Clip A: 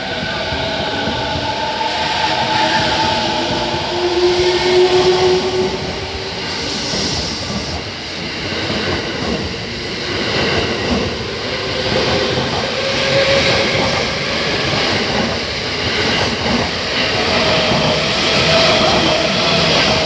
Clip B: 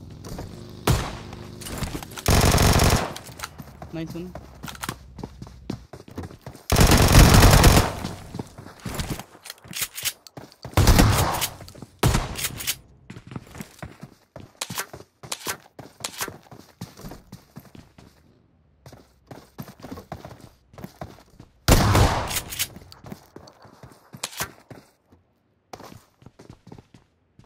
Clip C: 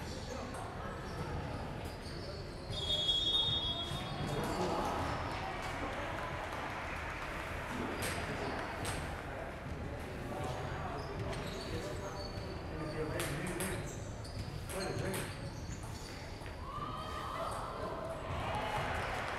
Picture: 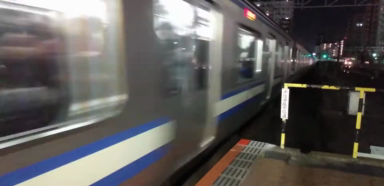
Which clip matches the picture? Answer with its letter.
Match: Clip A